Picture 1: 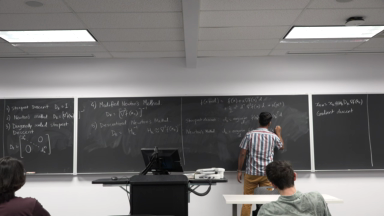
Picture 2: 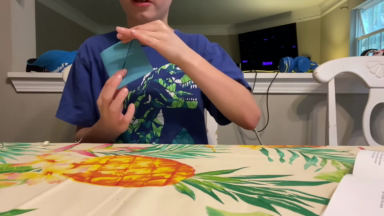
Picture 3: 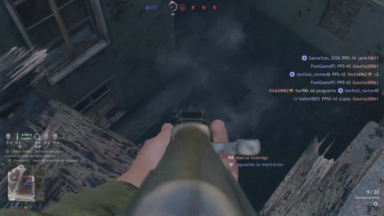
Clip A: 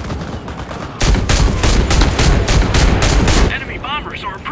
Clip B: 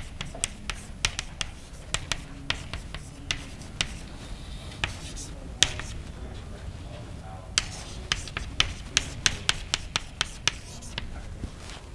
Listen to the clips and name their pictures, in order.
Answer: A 3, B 1